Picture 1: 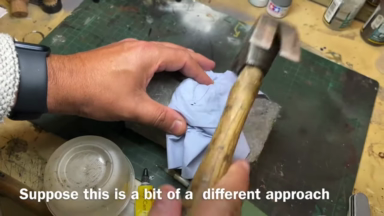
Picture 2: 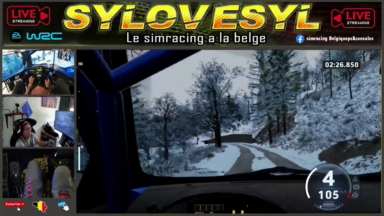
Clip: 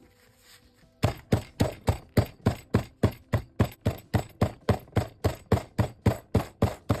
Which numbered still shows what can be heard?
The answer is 1